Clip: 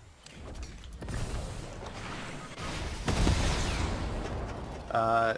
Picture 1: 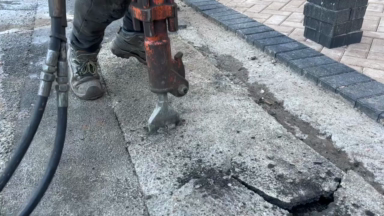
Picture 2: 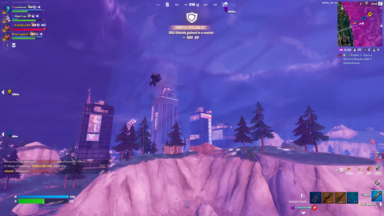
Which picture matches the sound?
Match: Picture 2